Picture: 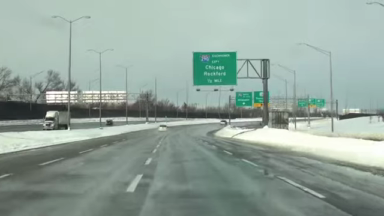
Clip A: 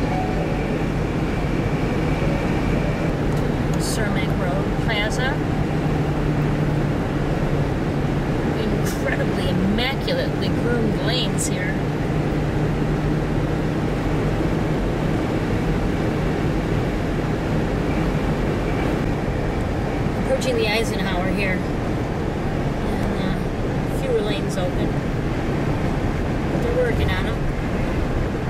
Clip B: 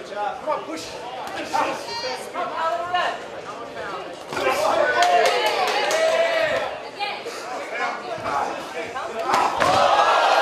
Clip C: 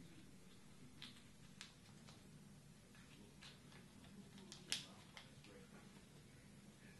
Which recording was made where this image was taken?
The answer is A